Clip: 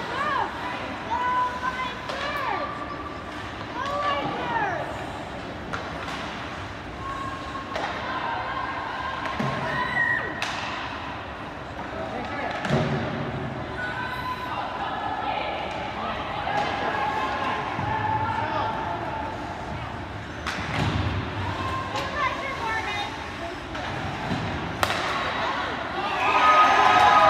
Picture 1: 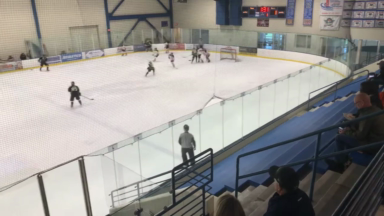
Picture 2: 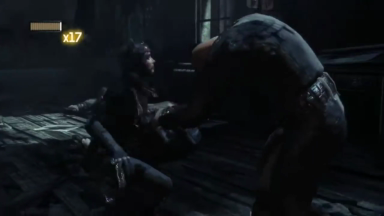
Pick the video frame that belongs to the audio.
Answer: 1